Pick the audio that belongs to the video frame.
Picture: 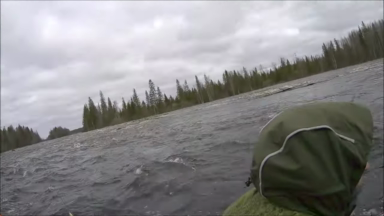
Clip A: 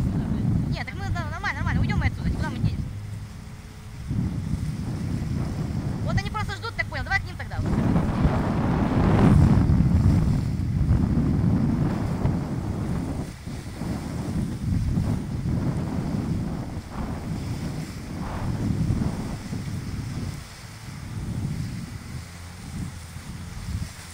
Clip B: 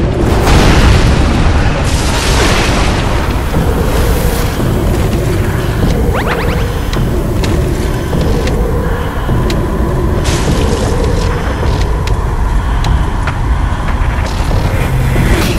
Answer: A